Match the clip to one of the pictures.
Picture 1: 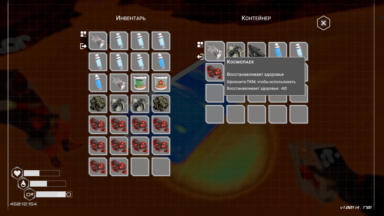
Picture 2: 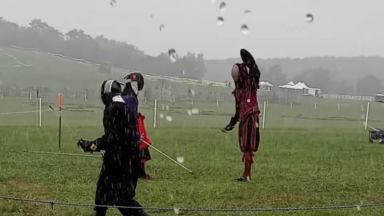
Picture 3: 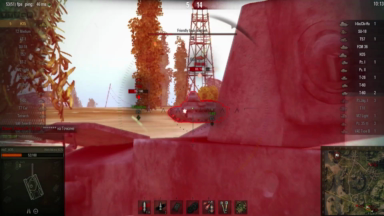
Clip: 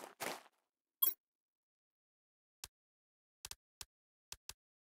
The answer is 1